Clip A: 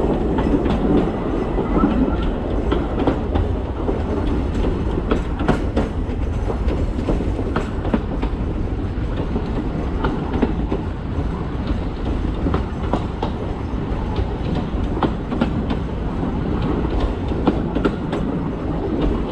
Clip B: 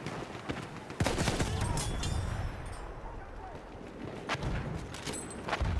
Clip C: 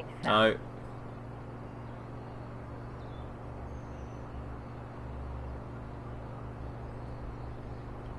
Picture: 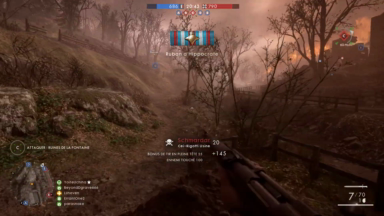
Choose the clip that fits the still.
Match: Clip B